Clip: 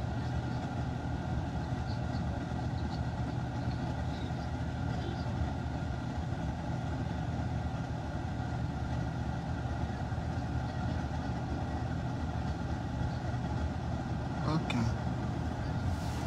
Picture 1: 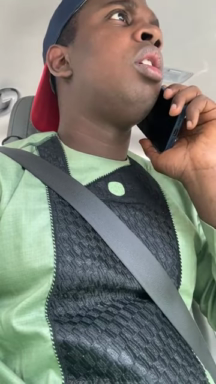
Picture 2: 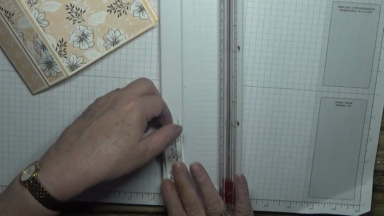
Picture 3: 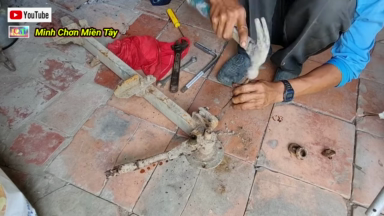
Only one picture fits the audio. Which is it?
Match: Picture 1